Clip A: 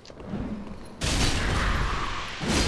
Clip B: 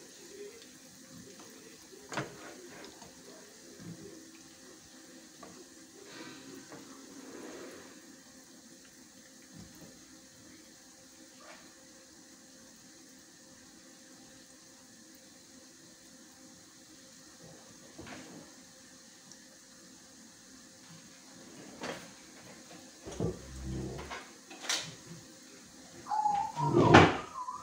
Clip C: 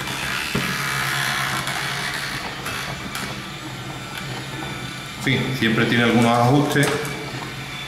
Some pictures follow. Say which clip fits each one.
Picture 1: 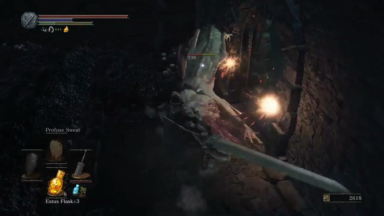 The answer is A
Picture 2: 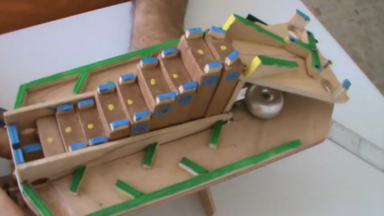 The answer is C